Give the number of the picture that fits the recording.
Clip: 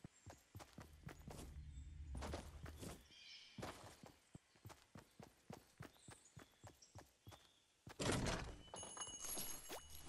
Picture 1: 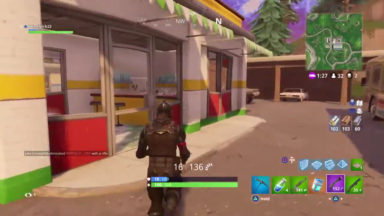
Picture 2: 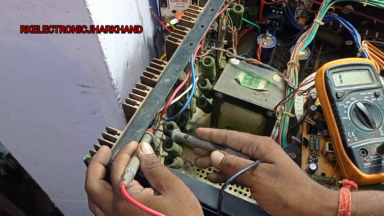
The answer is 1